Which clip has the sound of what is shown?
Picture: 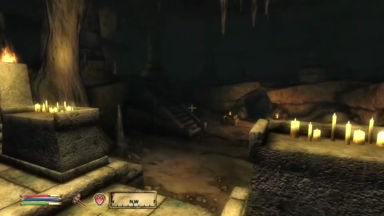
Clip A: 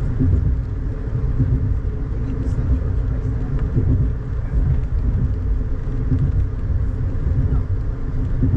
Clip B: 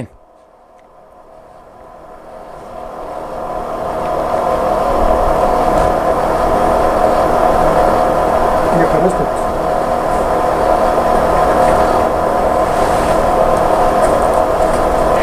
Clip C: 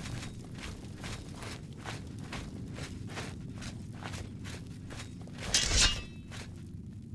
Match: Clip C